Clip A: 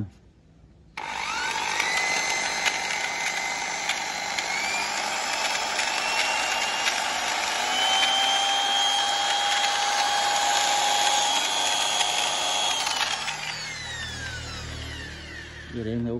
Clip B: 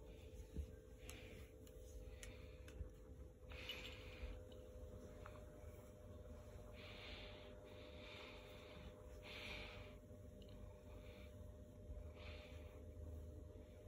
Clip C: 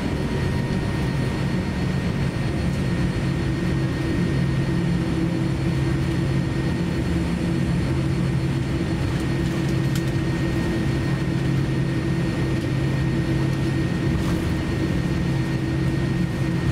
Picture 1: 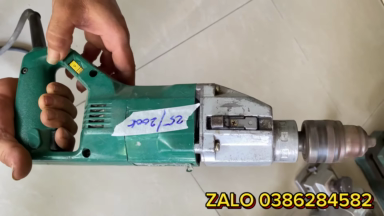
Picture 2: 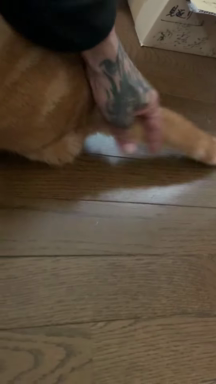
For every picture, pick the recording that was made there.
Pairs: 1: A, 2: B